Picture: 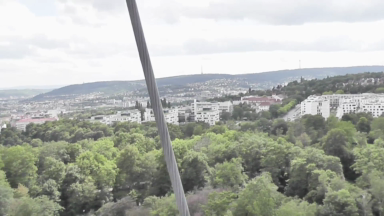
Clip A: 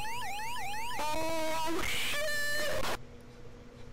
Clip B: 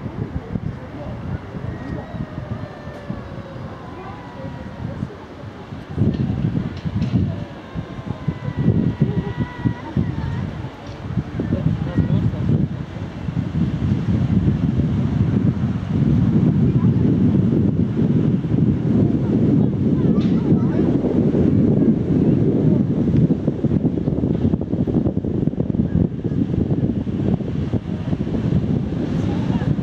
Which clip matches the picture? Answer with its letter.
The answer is B